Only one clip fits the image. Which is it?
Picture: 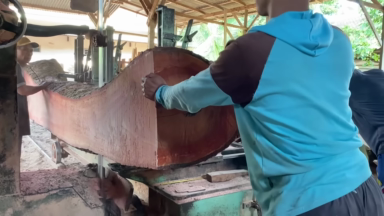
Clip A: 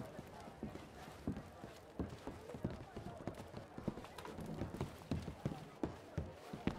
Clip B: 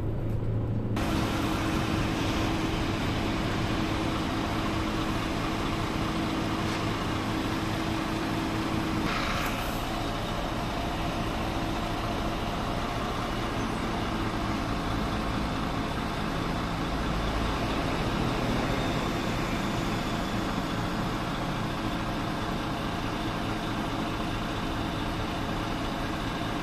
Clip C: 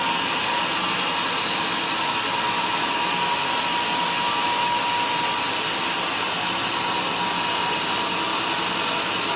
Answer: C